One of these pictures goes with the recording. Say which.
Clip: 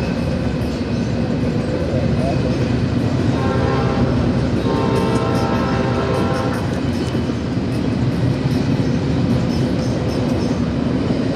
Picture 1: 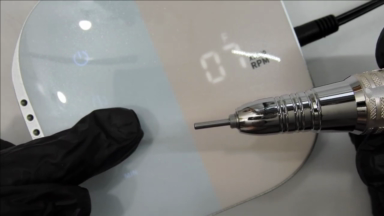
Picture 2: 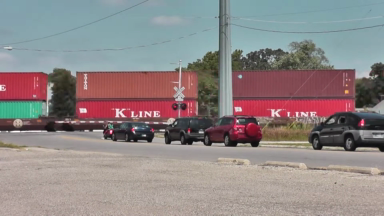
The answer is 2